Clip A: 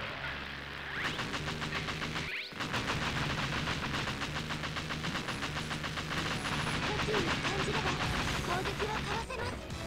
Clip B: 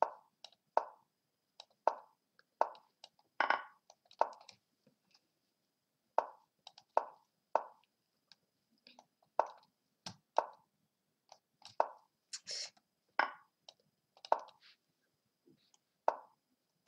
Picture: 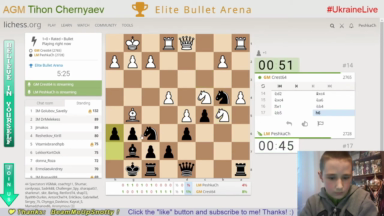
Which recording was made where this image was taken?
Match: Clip B